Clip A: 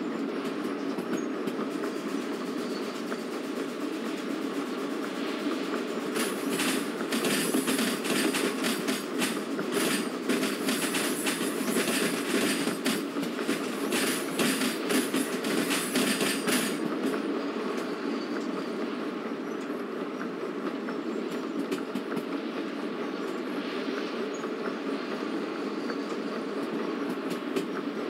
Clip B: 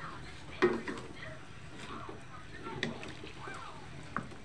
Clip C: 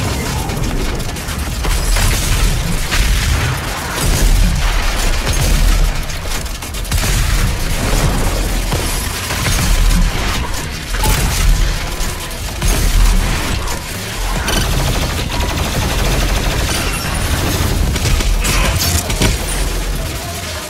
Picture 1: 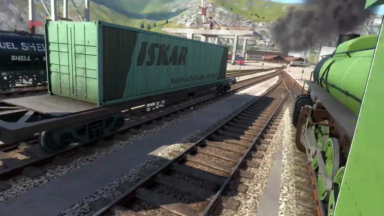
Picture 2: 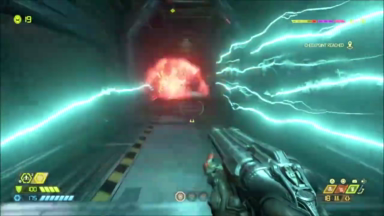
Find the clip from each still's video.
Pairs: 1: A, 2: C